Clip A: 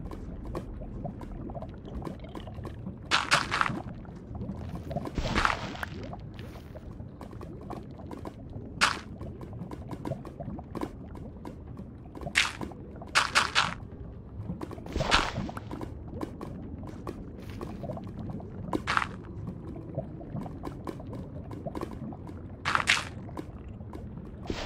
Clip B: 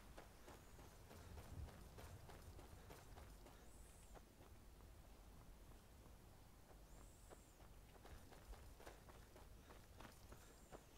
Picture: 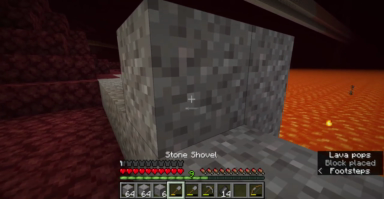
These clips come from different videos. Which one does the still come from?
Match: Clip A